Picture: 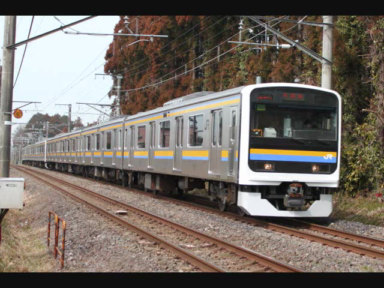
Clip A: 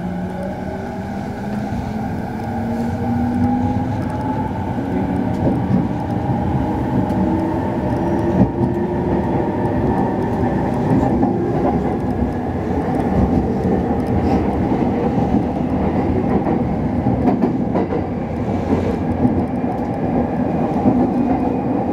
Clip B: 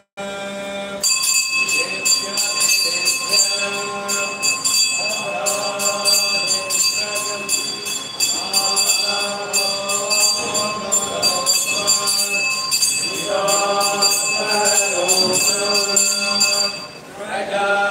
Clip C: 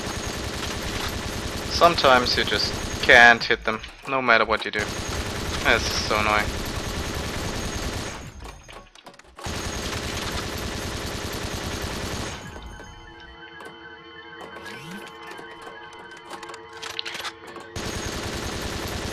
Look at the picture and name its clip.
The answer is A